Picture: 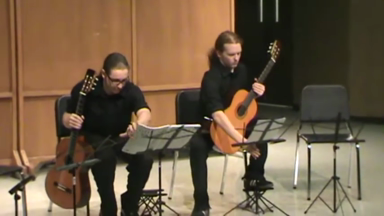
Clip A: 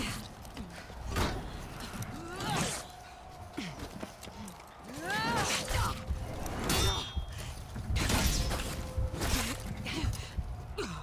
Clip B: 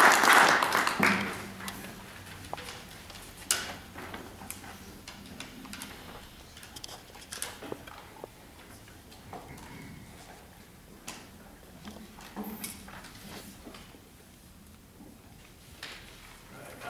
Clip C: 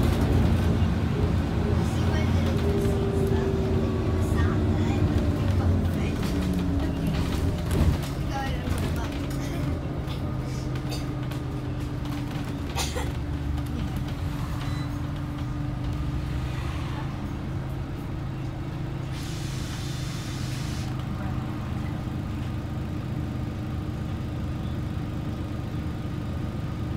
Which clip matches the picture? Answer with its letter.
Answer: B